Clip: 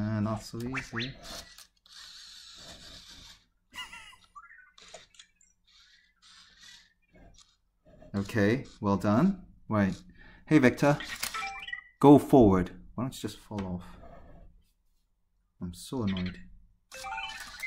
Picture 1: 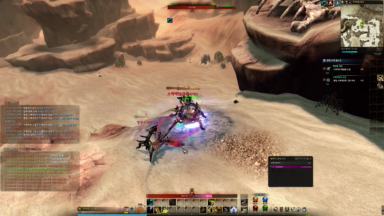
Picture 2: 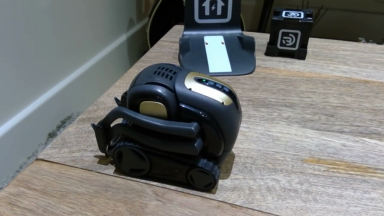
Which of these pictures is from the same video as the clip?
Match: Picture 2